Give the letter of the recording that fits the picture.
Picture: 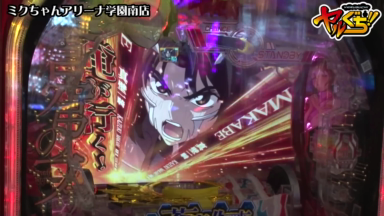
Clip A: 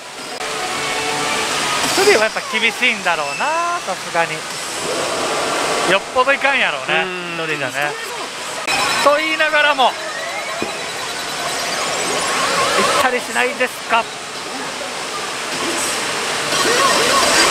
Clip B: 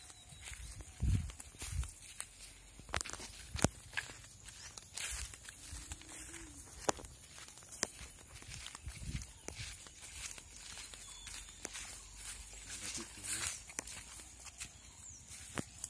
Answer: A